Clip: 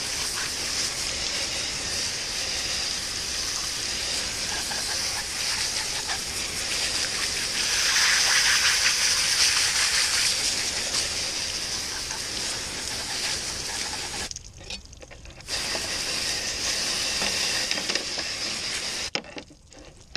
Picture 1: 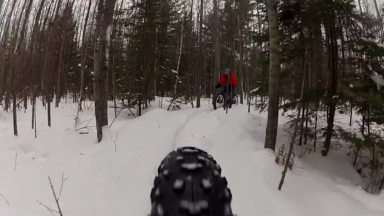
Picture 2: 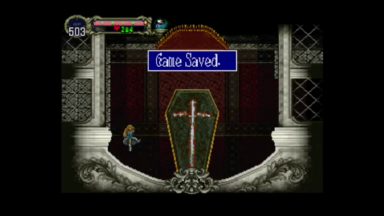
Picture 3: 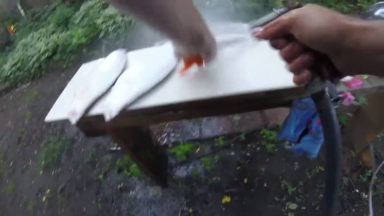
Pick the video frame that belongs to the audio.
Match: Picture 3